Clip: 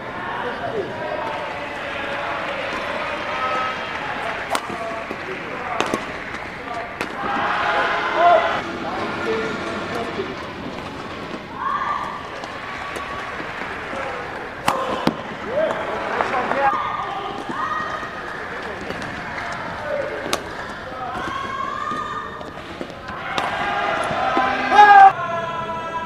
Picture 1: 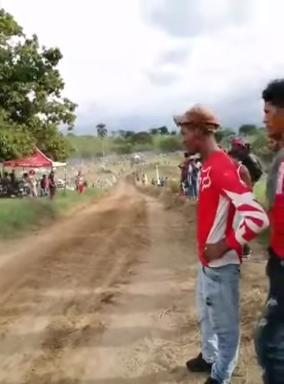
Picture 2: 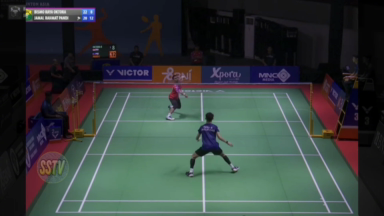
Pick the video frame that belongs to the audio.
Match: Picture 2